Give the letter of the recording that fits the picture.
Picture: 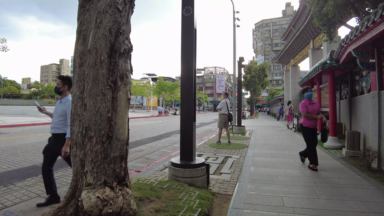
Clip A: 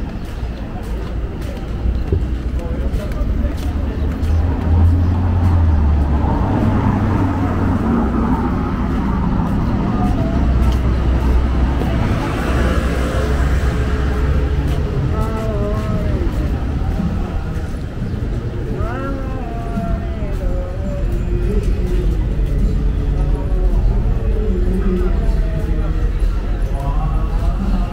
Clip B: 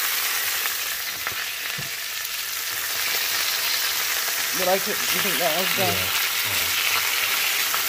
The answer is A